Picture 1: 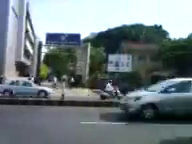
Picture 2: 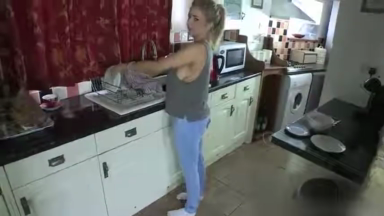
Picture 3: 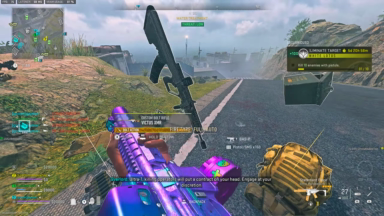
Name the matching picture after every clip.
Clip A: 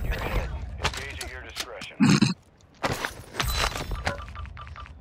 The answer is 3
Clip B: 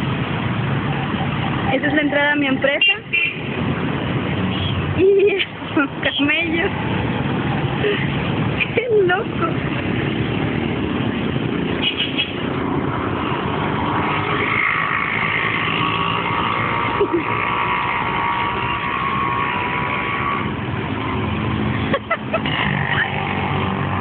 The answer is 1